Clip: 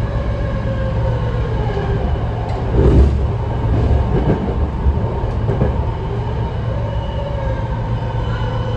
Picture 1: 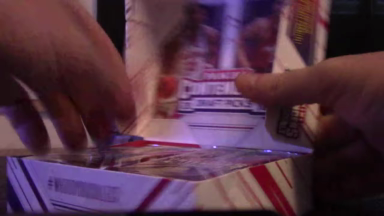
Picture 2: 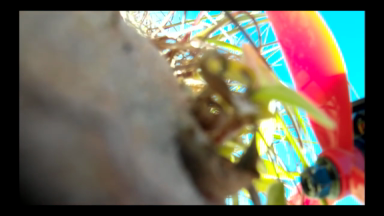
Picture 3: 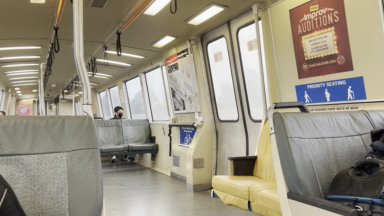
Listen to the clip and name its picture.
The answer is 3